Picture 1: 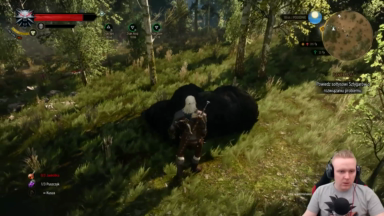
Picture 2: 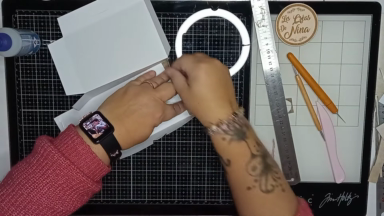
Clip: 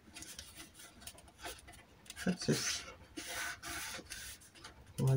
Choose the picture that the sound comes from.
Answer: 2